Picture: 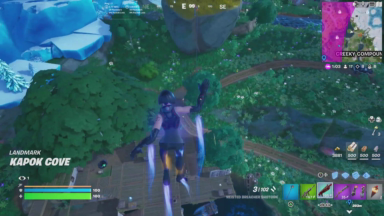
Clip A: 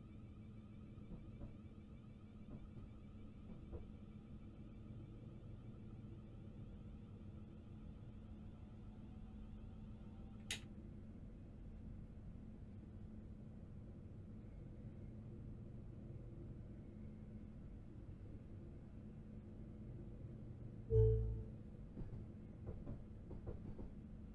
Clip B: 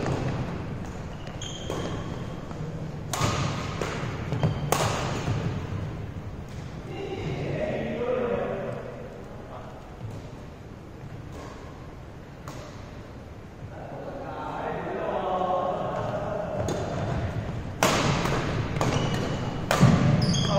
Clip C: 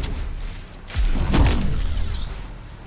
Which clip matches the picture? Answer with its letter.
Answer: C